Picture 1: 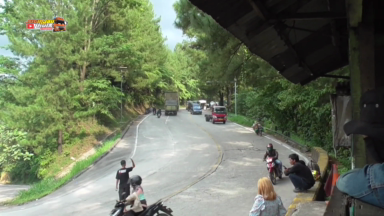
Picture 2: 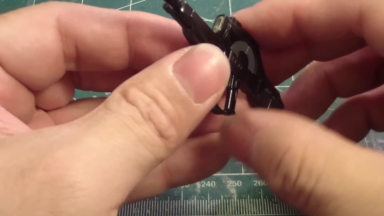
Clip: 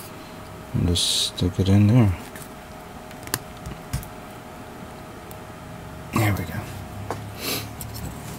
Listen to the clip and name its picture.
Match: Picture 2